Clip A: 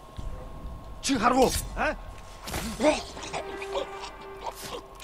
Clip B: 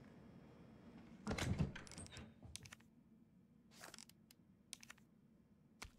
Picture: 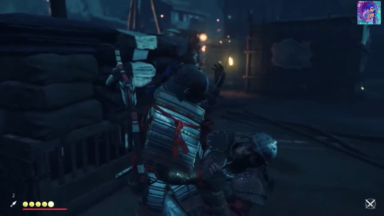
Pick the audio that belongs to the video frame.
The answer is A